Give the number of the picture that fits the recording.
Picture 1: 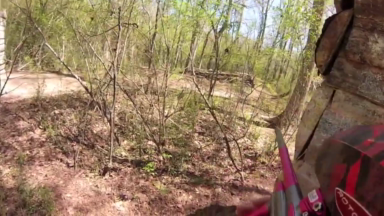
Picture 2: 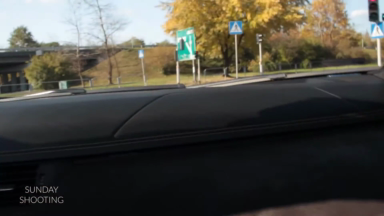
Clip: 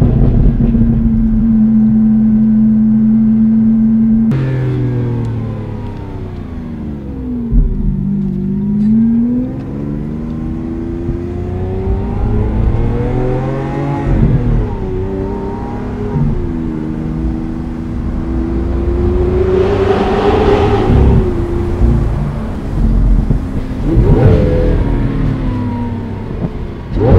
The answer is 2